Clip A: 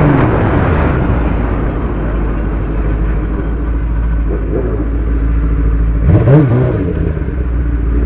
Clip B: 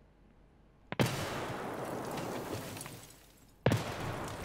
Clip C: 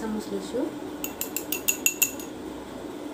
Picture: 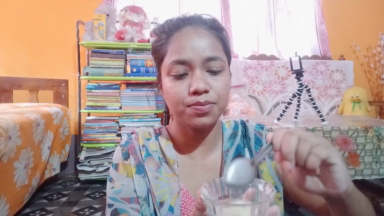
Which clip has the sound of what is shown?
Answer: C